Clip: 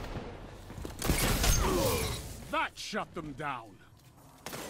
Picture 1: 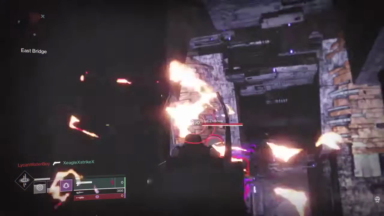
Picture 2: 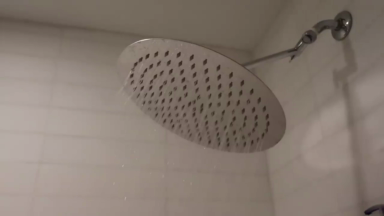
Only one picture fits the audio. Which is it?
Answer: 1